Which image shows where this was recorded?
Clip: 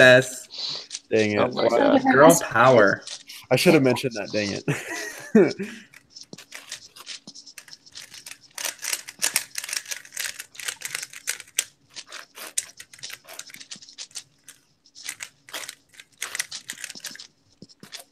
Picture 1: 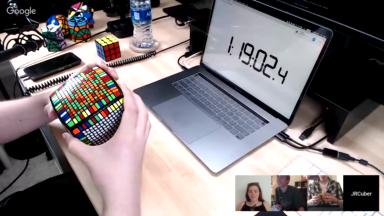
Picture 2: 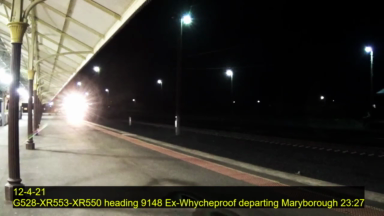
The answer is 1